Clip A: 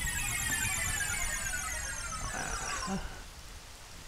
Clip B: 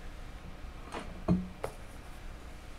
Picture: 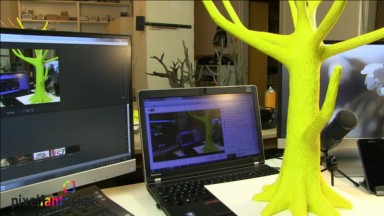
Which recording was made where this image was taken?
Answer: B